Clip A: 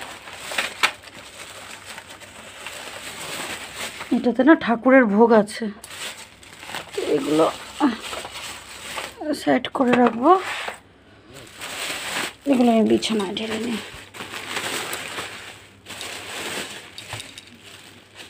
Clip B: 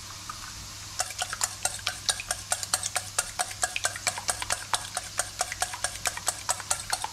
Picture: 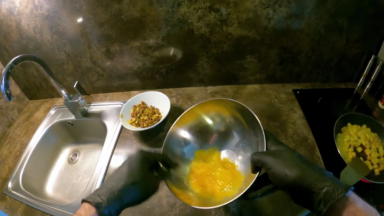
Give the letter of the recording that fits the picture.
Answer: B